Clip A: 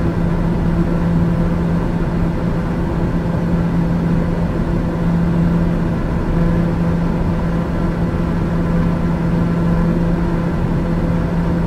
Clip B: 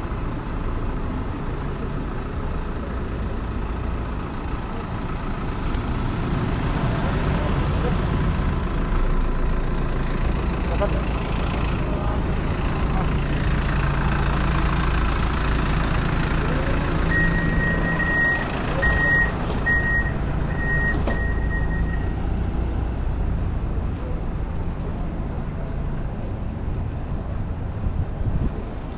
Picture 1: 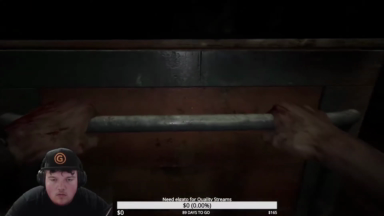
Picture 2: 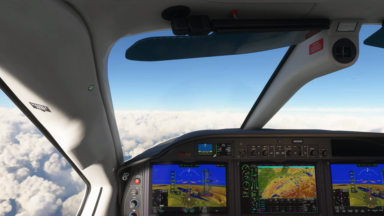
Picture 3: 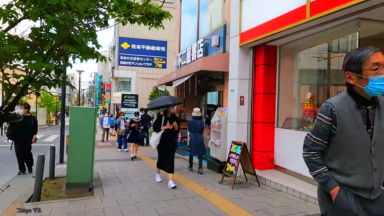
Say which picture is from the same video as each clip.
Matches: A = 2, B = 3